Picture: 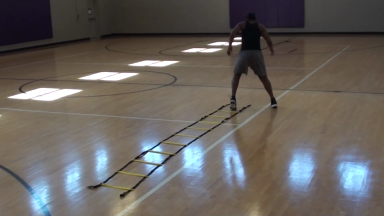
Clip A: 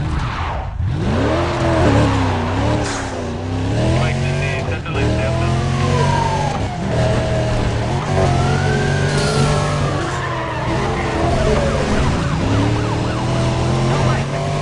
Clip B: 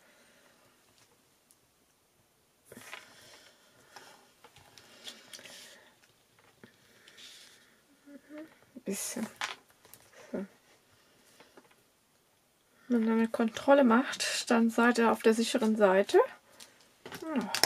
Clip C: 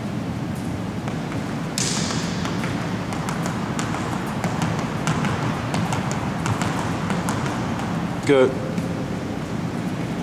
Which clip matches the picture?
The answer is C